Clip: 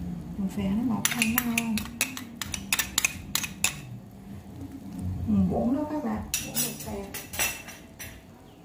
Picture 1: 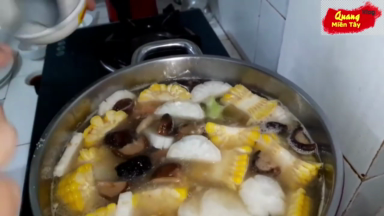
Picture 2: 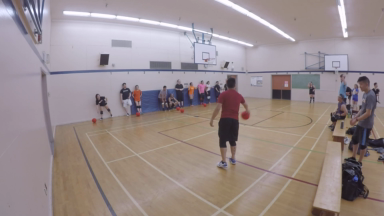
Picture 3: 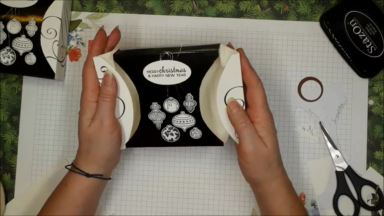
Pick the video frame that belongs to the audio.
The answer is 1